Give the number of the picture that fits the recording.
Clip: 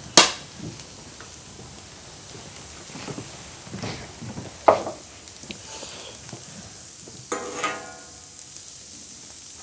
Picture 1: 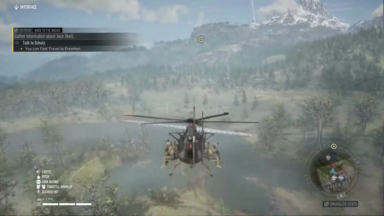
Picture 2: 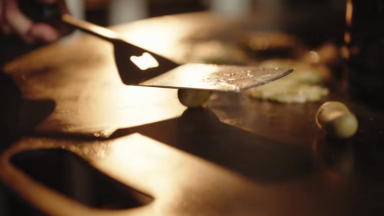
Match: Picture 2